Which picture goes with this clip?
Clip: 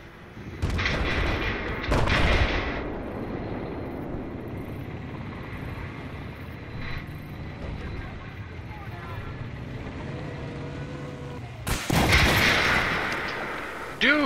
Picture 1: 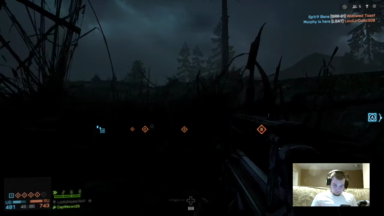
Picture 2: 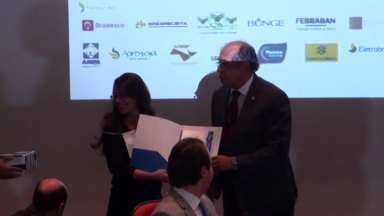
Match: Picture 1